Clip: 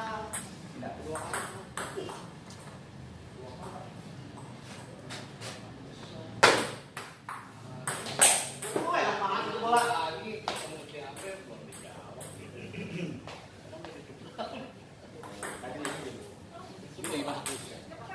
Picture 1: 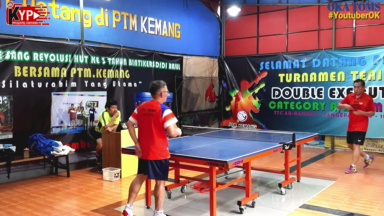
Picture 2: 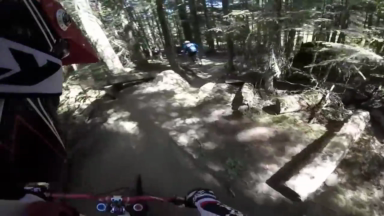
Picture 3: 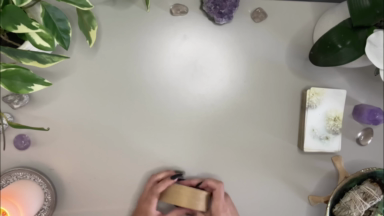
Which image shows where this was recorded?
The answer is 1